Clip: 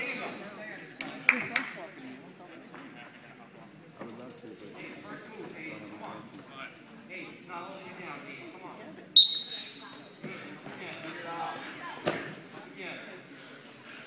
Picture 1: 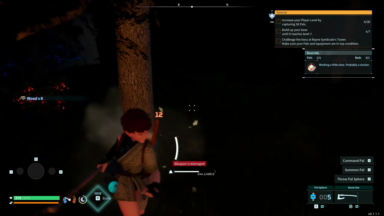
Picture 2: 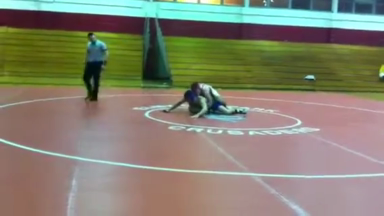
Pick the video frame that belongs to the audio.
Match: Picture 2